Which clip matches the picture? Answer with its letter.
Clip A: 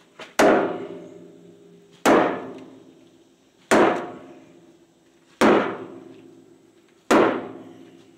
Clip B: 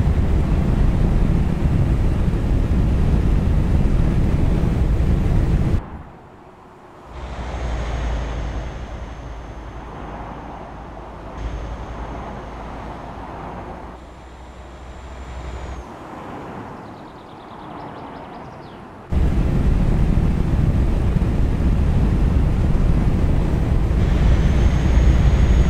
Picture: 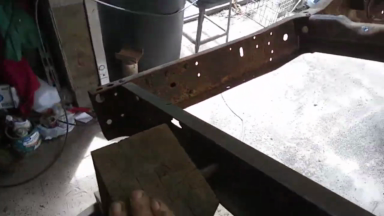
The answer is A